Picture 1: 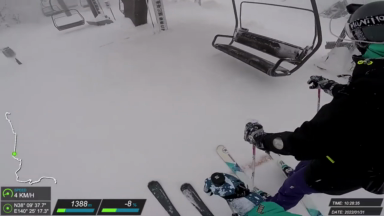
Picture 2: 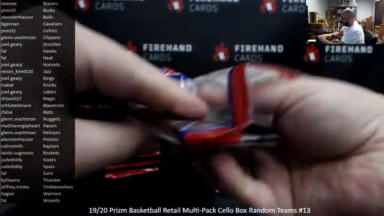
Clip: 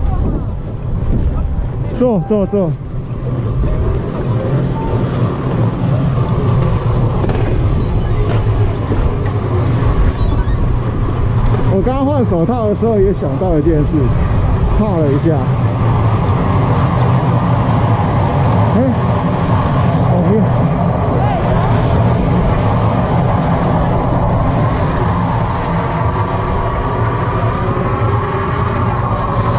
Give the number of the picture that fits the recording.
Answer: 1